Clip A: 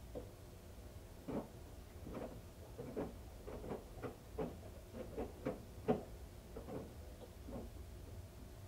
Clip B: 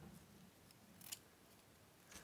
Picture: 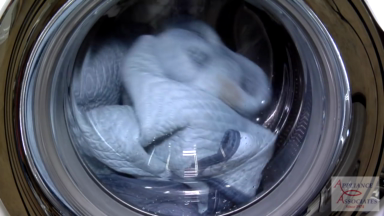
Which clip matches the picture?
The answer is A